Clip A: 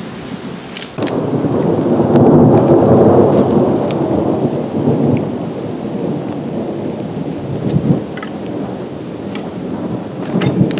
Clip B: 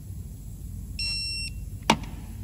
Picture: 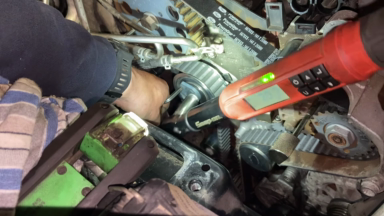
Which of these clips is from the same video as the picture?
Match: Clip B